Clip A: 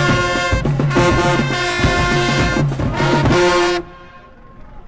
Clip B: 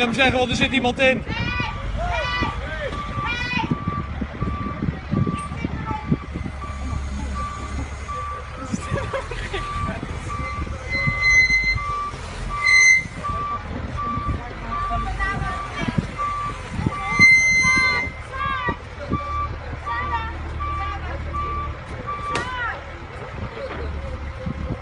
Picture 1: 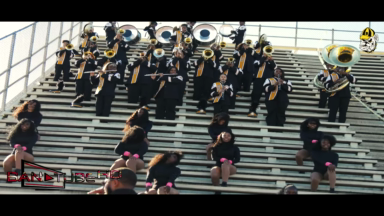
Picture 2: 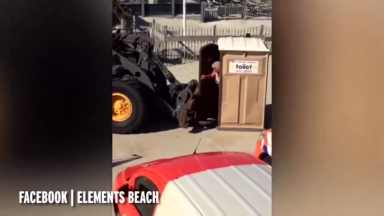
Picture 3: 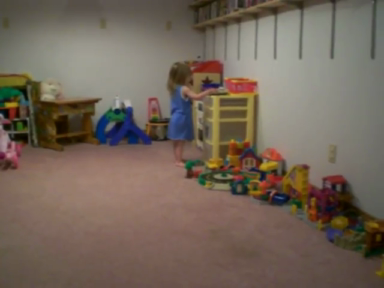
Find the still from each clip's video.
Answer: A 1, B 2